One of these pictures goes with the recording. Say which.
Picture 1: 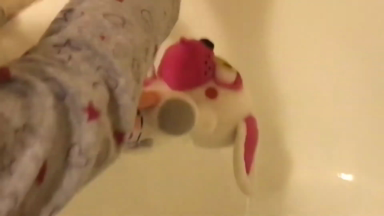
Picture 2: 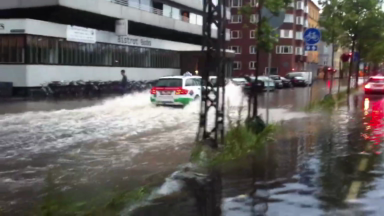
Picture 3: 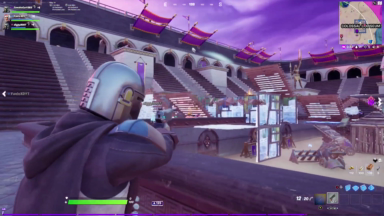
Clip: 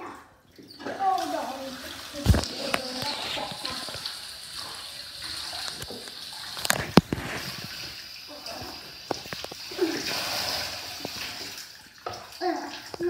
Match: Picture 1